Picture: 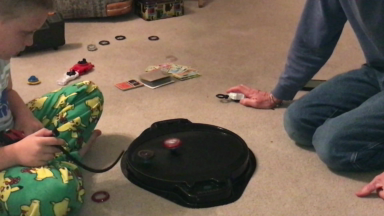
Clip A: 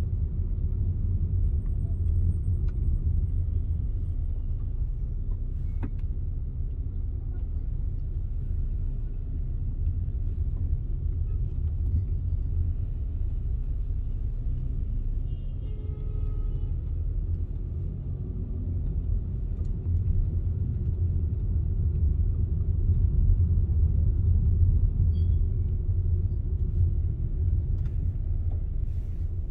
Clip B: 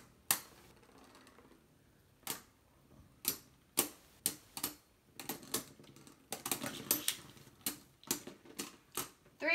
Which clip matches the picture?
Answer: B